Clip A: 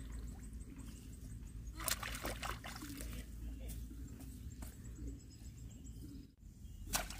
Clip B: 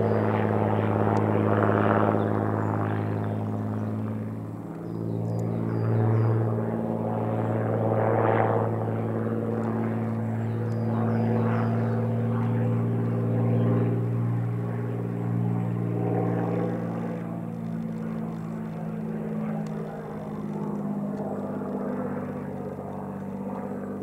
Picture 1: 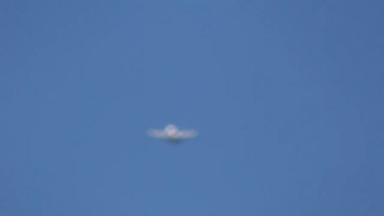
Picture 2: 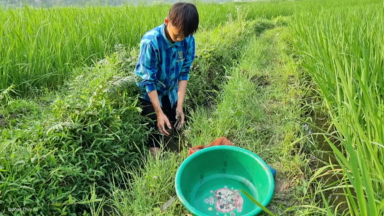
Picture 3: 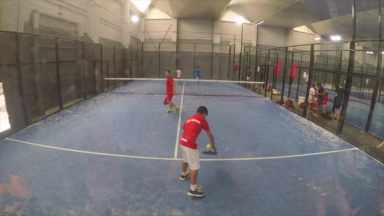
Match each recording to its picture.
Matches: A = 2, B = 1